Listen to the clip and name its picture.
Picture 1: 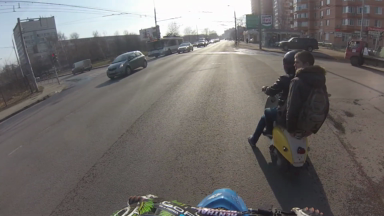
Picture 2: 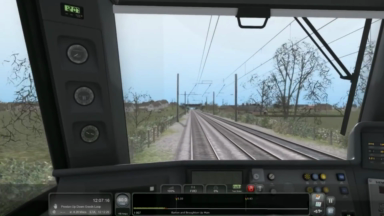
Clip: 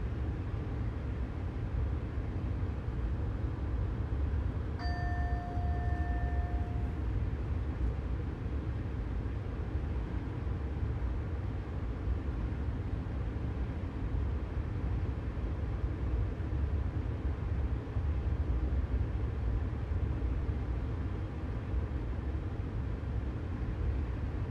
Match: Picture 2